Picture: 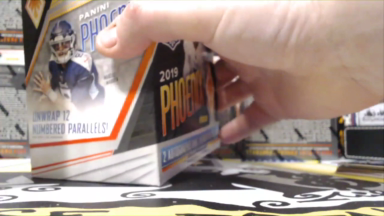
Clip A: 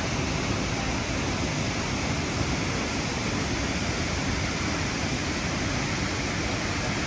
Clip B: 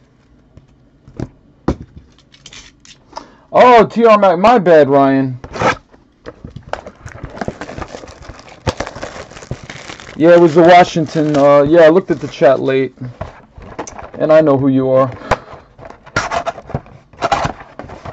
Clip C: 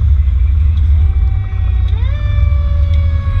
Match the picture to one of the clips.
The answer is B